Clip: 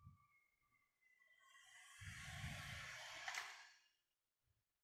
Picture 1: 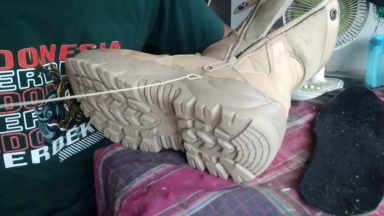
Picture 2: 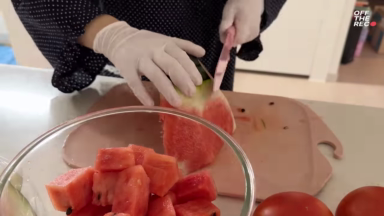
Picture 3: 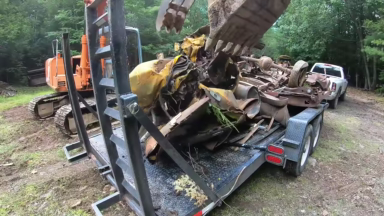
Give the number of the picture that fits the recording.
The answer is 1